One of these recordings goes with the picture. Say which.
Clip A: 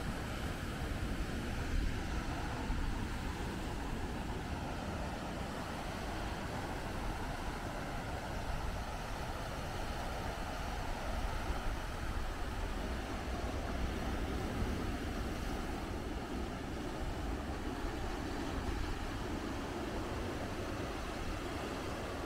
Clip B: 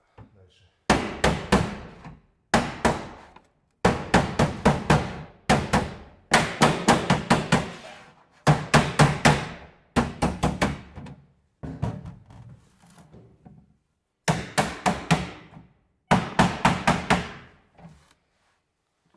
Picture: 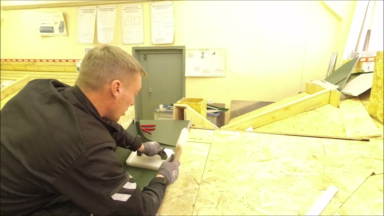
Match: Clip B